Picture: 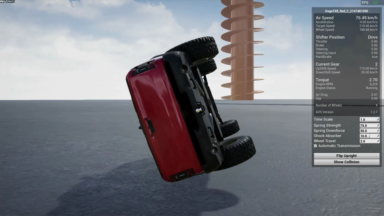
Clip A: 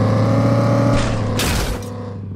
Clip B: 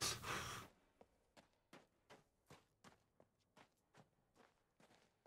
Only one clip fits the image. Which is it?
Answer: A